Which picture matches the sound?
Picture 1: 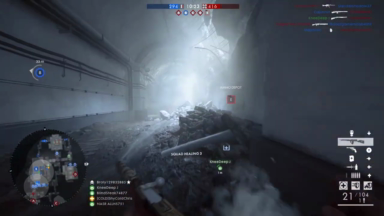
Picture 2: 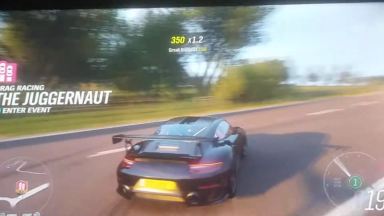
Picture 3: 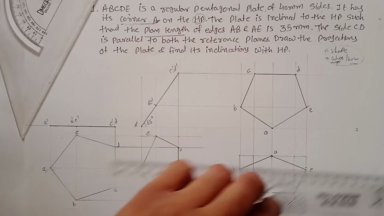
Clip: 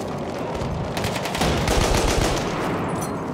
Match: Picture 1